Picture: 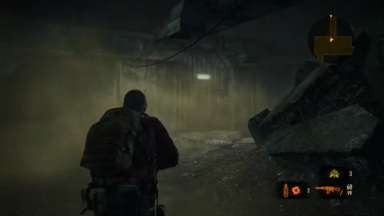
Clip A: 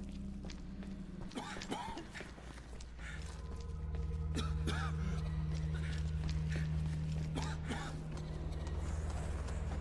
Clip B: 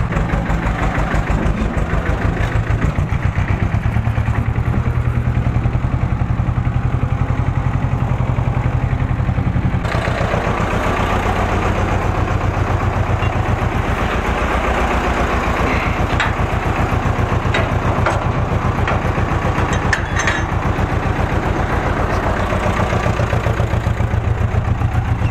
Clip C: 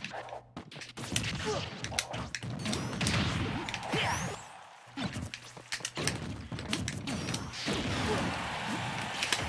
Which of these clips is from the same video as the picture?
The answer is A